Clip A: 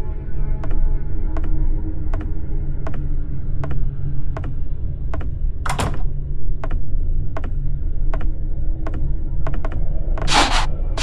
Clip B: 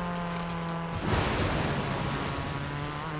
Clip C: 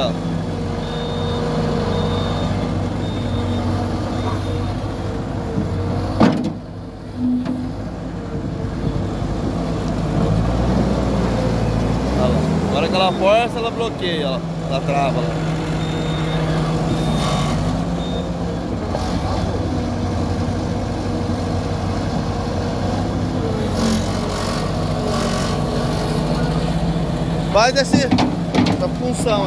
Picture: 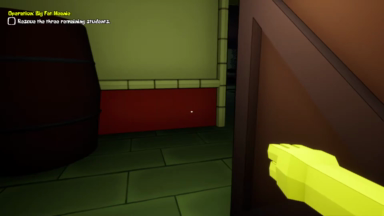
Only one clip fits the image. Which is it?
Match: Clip A